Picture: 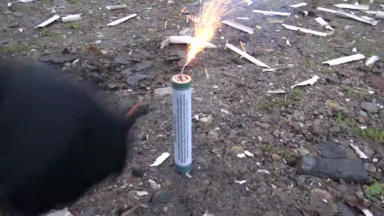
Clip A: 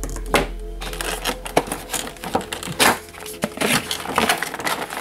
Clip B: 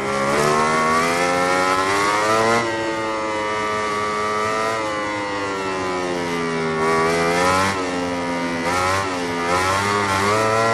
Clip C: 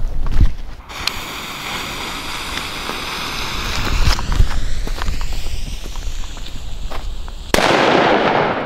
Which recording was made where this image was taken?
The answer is C